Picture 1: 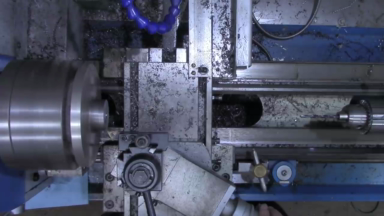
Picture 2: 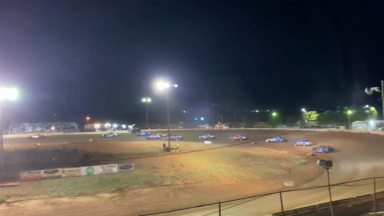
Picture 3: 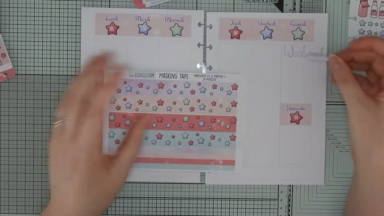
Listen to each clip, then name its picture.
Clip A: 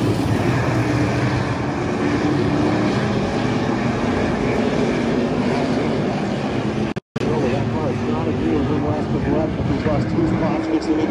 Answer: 2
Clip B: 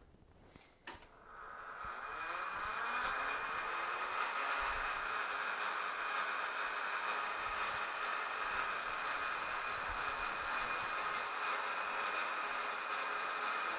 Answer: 1